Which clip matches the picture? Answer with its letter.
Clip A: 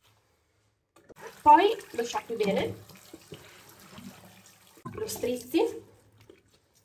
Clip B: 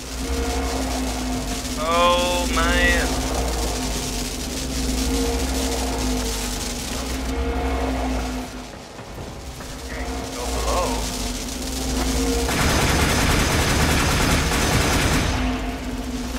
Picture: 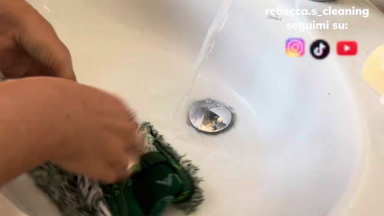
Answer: A